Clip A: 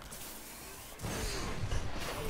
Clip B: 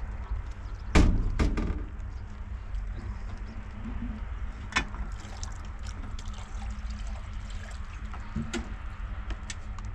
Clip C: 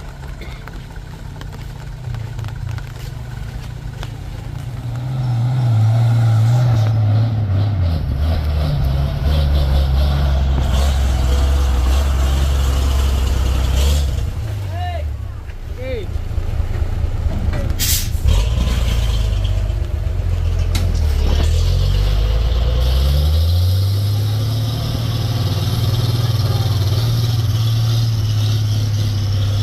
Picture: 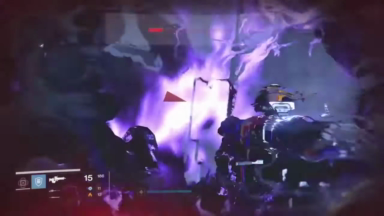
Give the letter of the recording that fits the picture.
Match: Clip A